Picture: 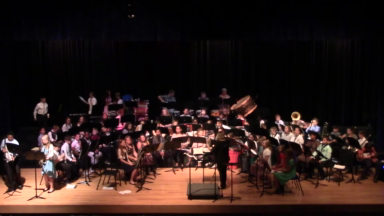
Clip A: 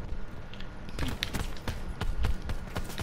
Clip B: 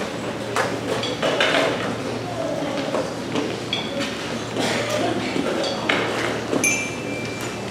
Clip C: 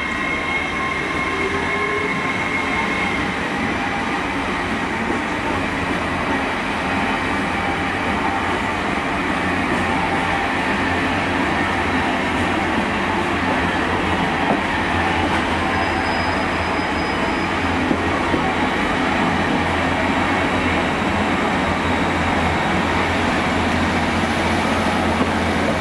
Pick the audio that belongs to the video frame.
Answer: B